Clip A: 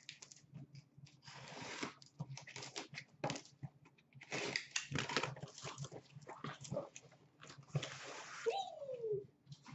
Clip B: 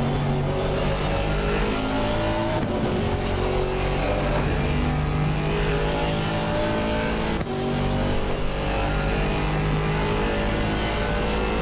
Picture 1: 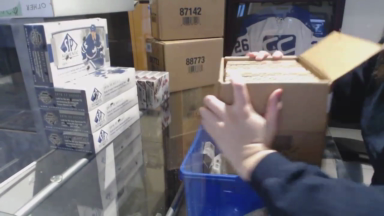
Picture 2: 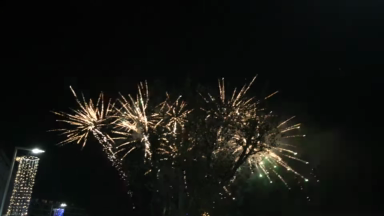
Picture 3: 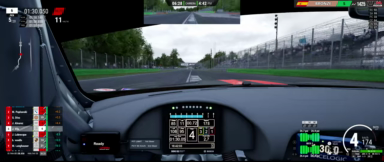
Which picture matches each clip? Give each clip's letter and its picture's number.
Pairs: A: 1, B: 3